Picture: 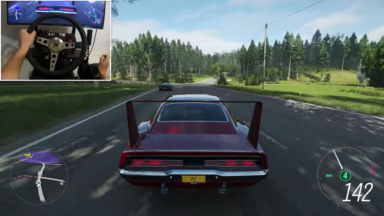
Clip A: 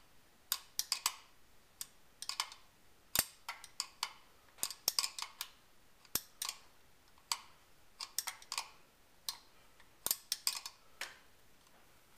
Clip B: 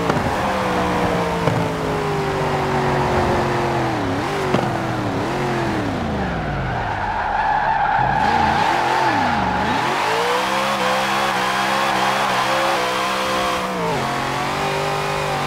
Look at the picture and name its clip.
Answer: B